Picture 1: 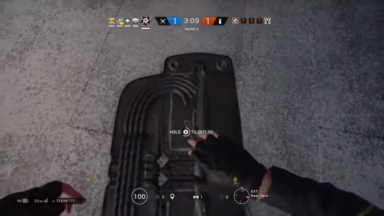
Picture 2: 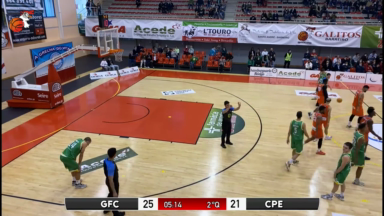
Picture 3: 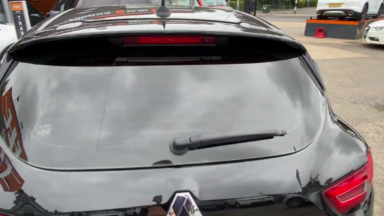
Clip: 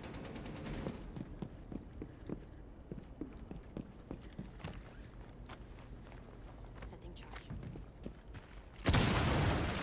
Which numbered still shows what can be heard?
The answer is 1